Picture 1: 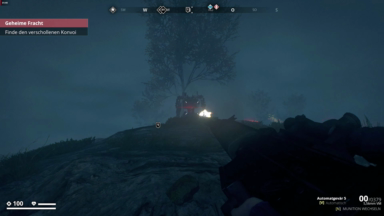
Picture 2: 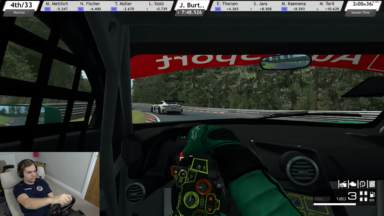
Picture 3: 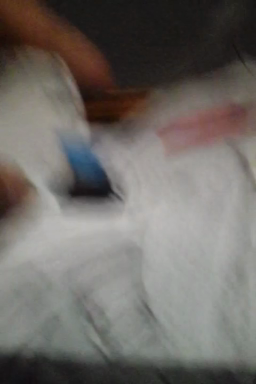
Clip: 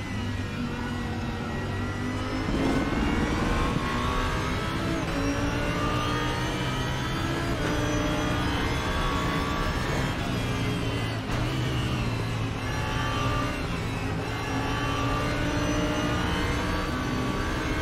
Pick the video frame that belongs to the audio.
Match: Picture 2